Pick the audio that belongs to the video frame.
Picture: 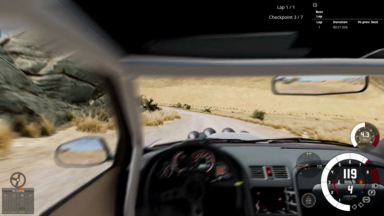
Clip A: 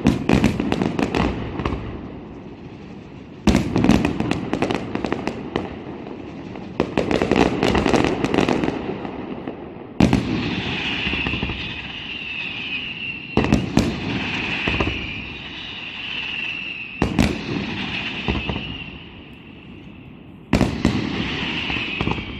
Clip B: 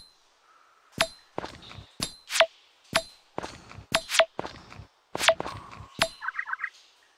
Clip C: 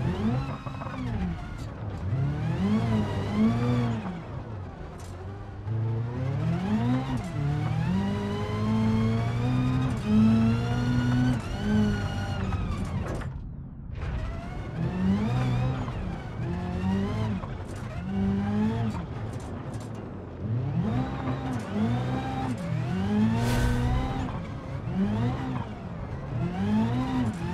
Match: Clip C